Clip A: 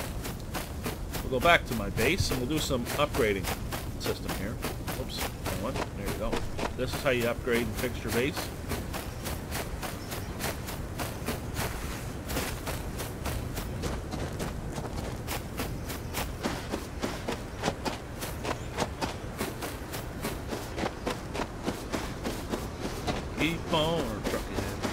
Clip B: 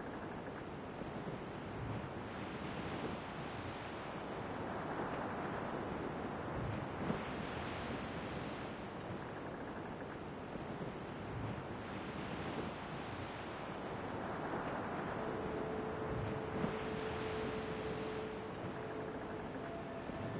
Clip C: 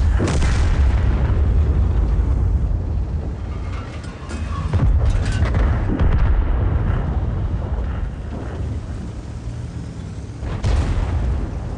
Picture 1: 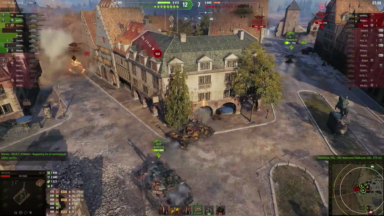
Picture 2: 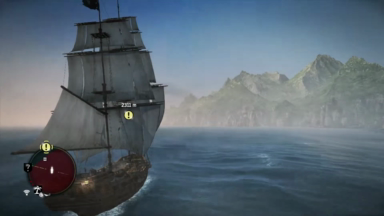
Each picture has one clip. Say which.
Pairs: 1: C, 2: B